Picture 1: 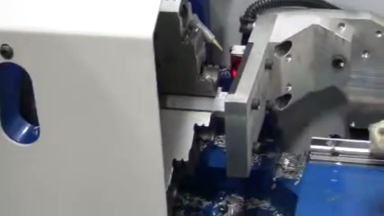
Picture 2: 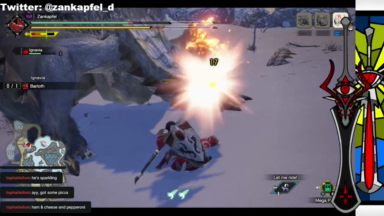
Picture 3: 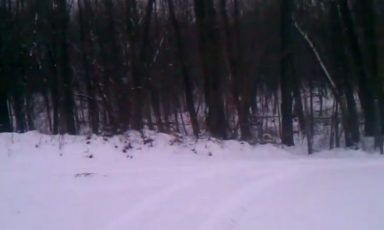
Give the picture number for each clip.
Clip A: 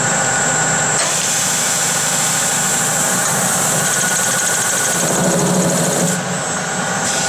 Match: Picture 1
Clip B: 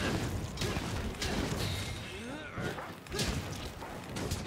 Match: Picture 2